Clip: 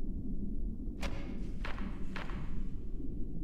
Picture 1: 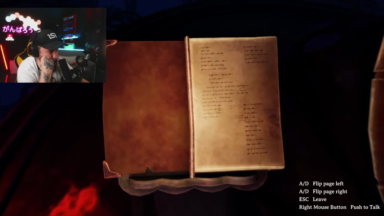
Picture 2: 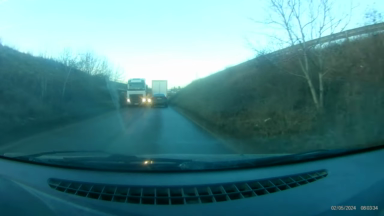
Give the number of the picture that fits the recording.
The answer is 1